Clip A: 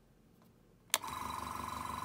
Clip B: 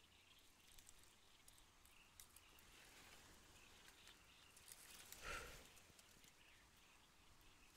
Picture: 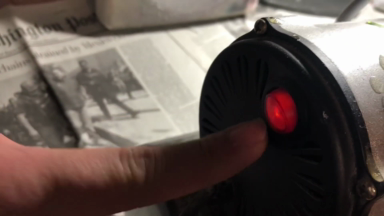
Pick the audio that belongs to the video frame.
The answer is A